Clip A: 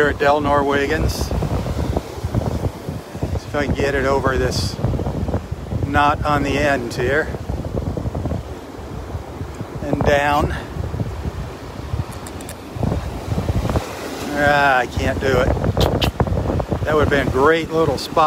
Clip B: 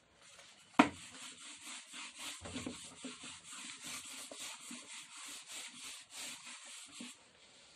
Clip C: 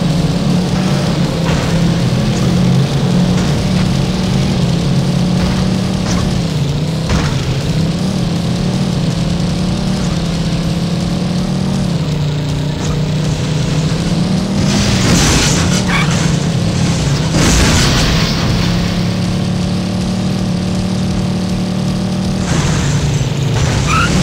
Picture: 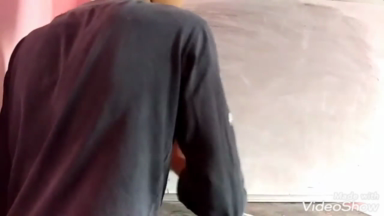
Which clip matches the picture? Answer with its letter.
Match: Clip B